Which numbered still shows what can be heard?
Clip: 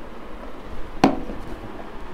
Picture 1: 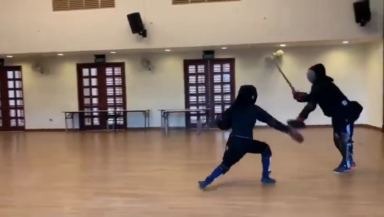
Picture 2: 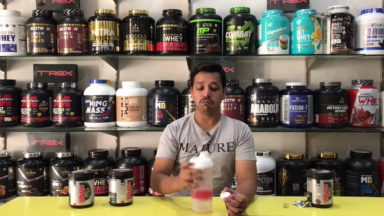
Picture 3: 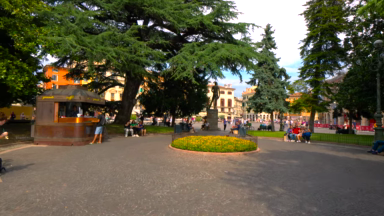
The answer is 2